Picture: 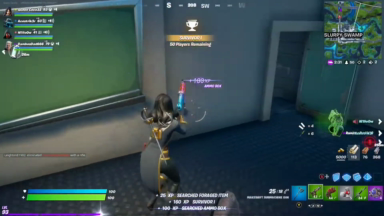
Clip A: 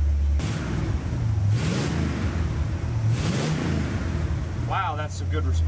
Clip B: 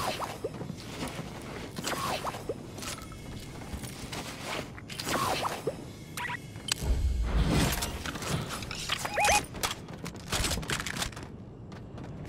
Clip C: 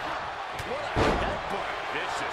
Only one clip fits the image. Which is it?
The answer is B